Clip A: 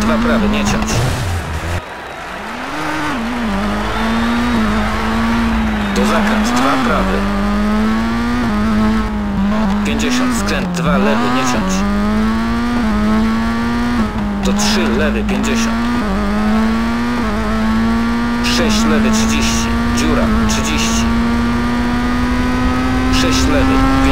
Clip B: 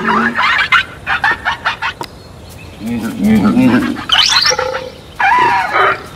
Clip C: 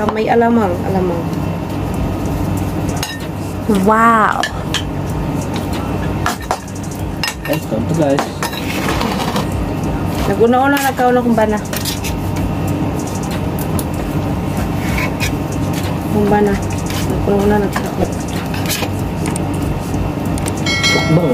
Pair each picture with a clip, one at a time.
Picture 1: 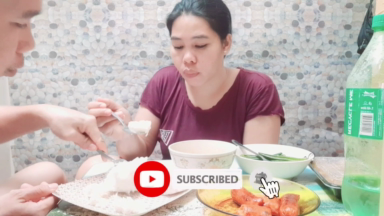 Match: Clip C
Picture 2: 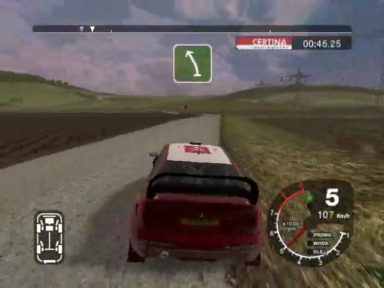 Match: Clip A